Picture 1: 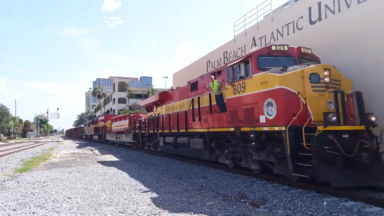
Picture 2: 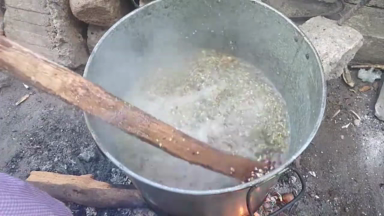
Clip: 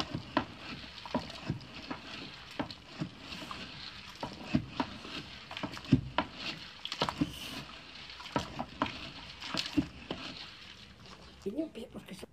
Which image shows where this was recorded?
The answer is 2